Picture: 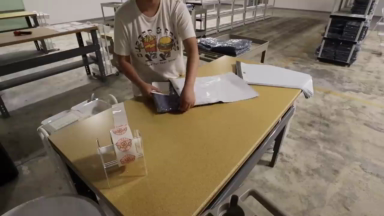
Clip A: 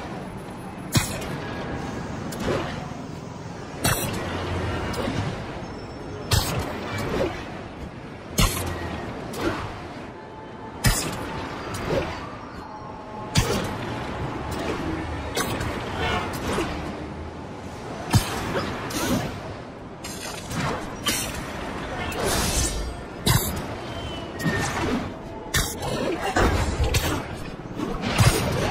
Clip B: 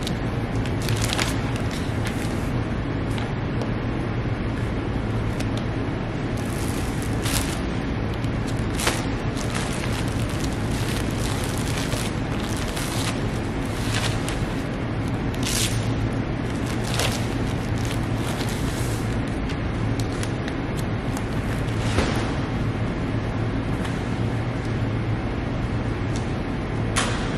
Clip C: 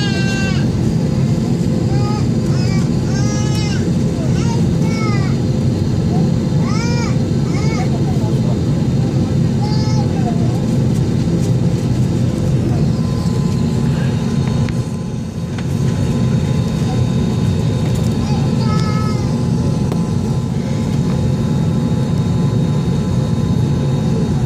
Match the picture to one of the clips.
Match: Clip B